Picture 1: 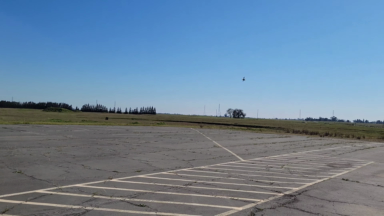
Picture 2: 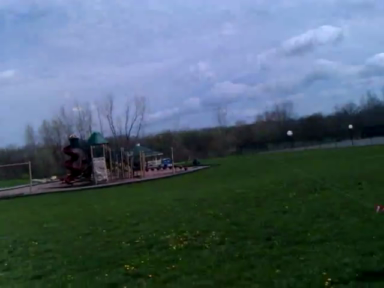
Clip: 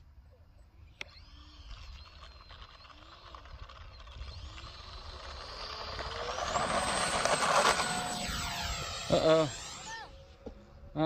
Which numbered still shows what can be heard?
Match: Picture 1